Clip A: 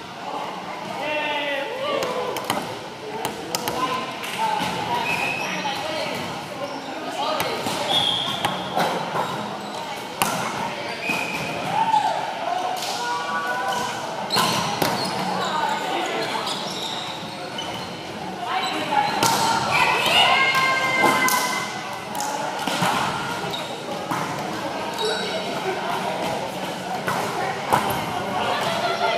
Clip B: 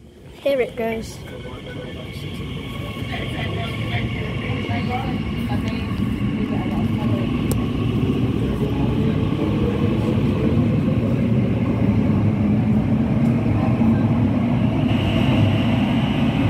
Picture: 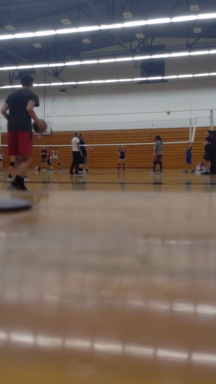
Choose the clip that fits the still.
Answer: A